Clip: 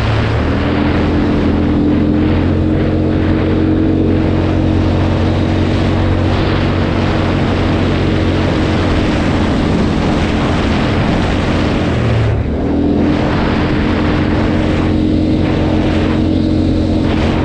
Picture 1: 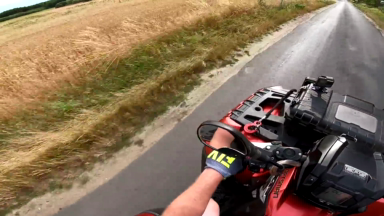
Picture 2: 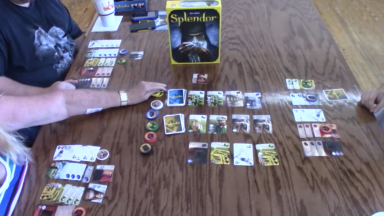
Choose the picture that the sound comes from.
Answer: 1